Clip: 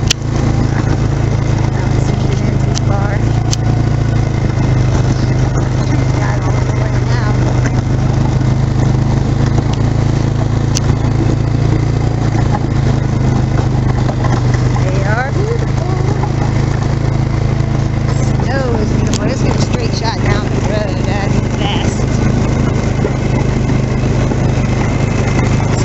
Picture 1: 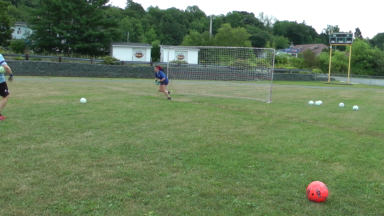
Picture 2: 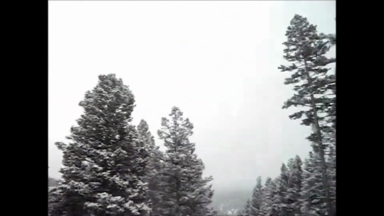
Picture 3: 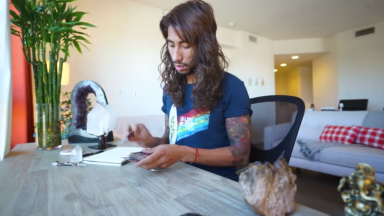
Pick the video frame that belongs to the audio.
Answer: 2